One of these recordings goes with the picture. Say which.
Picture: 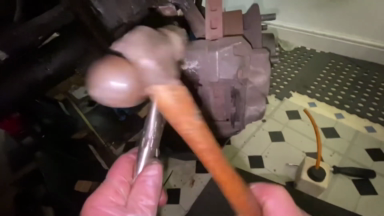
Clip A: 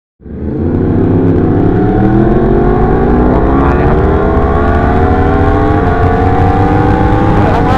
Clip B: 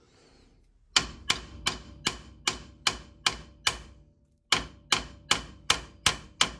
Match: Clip B